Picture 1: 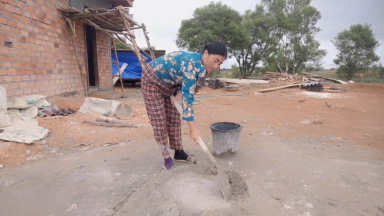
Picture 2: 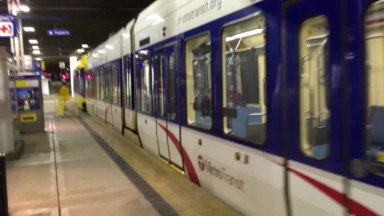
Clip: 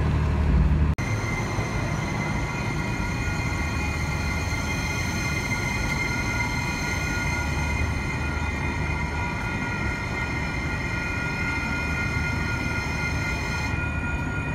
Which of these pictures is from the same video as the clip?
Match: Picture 2